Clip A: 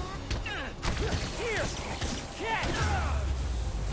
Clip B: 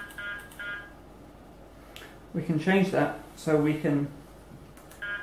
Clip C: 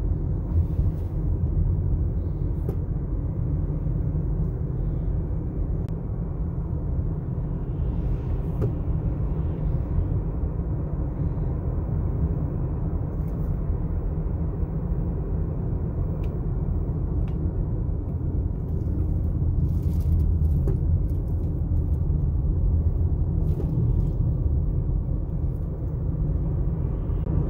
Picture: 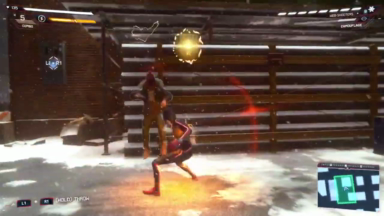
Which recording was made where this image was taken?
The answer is A